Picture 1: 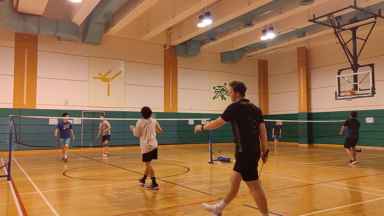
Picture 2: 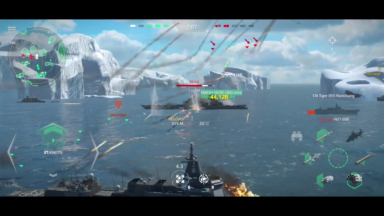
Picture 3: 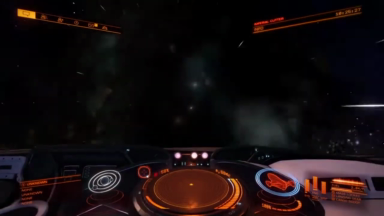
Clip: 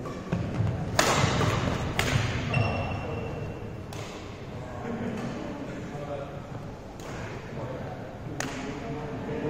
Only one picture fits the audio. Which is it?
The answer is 1